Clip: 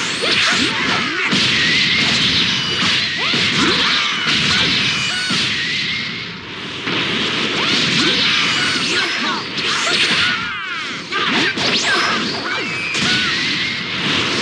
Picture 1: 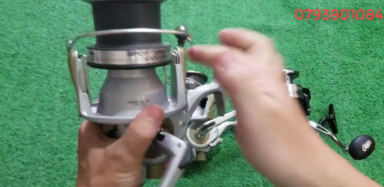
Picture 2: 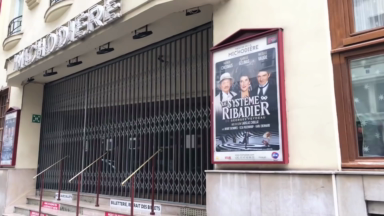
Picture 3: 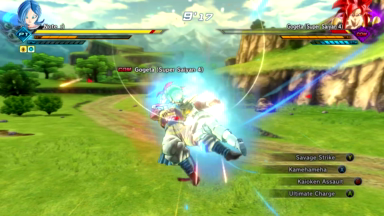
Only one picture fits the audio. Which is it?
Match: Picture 3